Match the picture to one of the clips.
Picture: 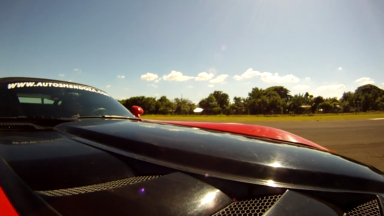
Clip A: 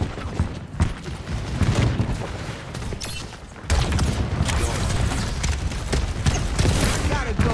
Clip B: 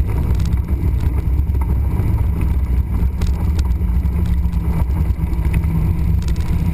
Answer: B